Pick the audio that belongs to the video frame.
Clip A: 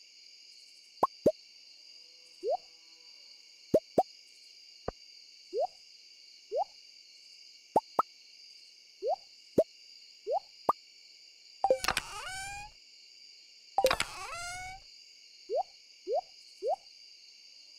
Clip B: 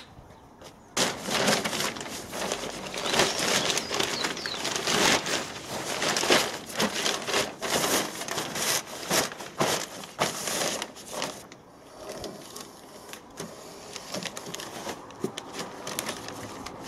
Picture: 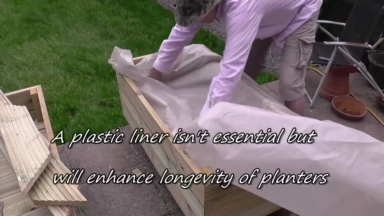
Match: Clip B